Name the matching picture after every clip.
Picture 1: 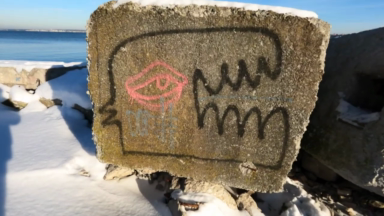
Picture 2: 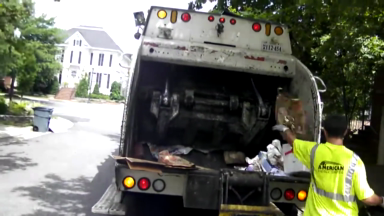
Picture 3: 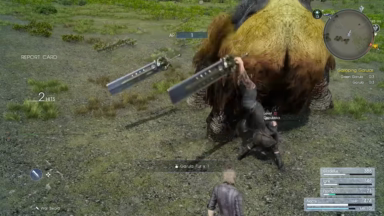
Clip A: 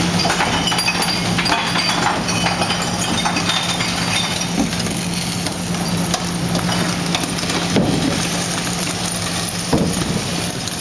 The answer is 2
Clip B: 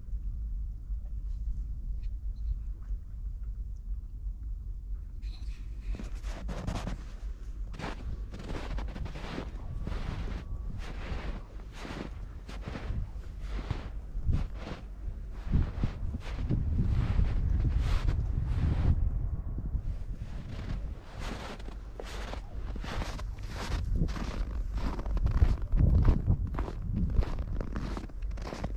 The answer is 1